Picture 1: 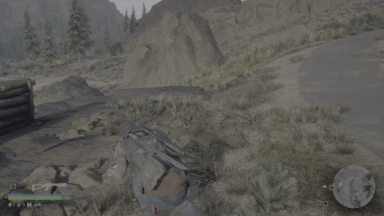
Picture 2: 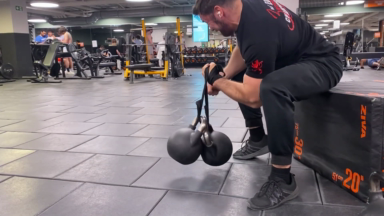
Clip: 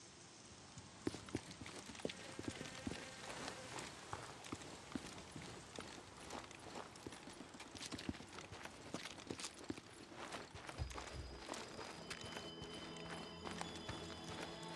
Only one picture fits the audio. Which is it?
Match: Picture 1